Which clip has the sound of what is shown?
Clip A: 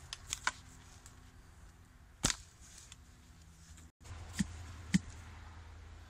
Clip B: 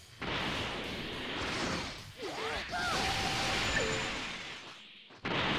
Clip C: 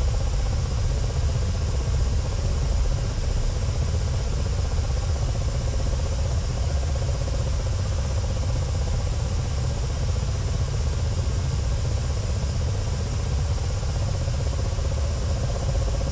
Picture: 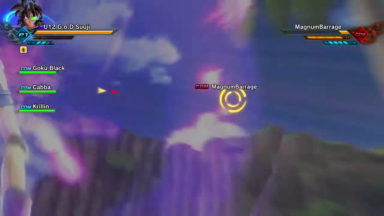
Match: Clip B